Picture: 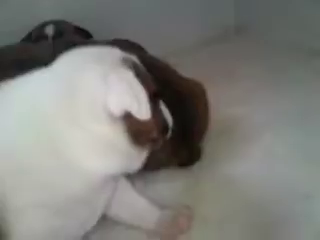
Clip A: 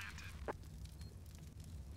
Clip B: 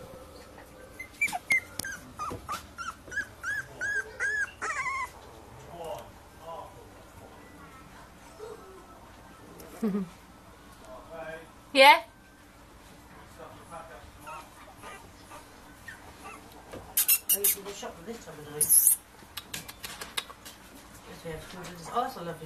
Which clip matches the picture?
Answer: B